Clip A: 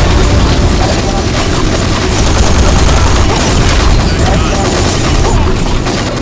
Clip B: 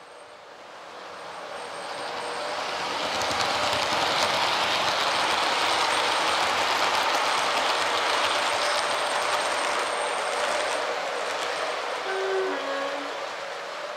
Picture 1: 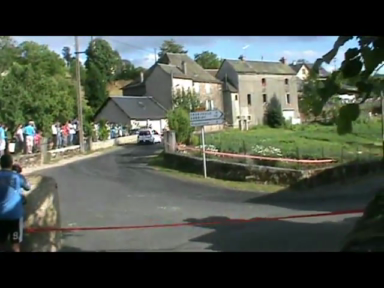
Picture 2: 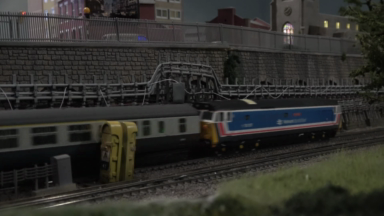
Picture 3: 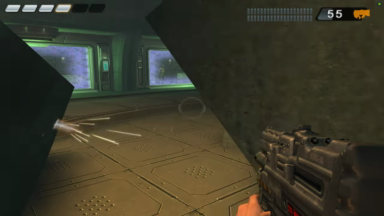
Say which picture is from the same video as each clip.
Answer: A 3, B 2